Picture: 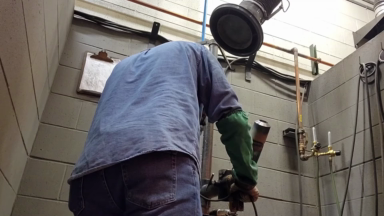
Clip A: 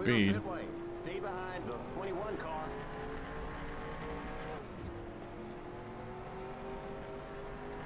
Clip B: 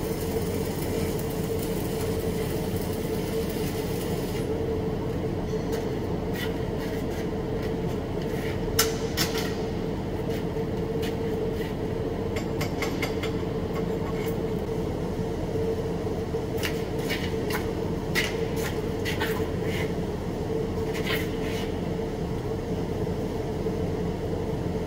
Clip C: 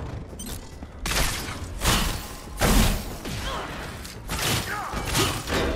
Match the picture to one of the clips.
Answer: B